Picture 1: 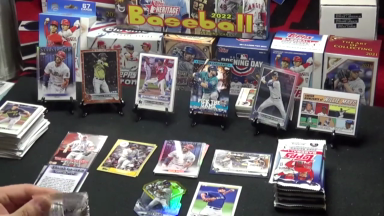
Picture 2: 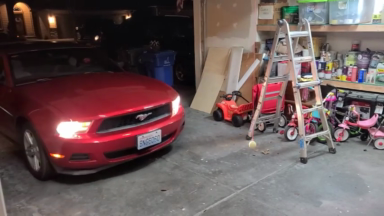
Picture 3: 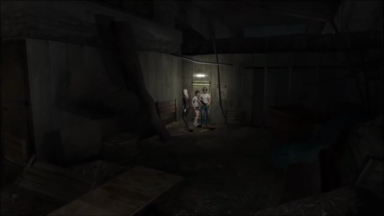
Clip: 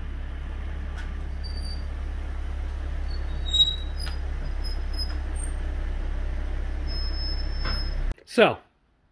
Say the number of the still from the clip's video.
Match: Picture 2